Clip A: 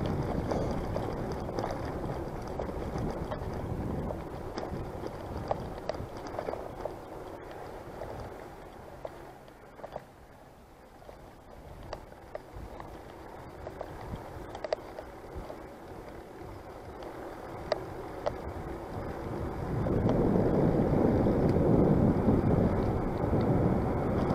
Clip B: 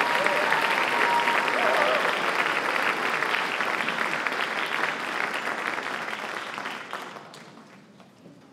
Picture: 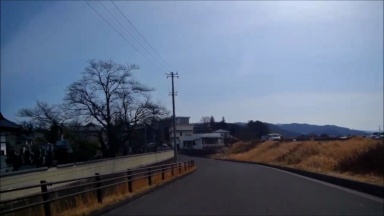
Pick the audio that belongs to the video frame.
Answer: A